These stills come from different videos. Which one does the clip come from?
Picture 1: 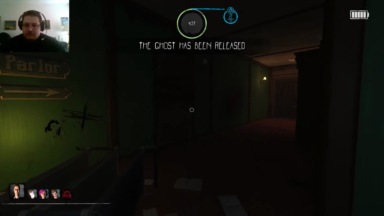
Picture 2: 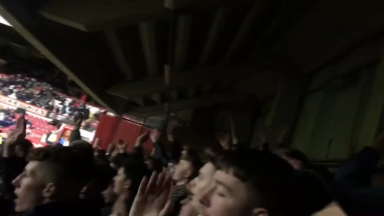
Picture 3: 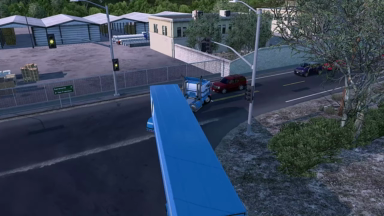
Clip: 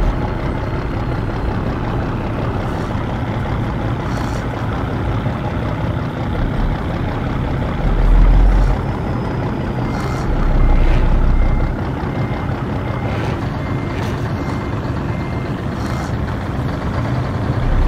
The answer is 3